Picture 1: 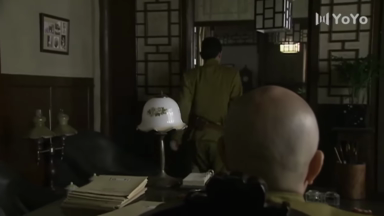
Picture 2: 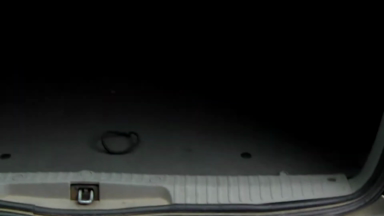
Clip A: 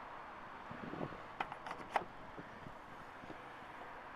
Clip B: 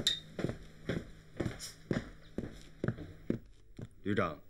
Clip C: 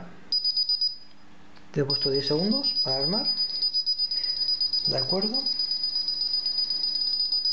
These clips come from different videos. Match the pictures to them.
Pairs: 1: B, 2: A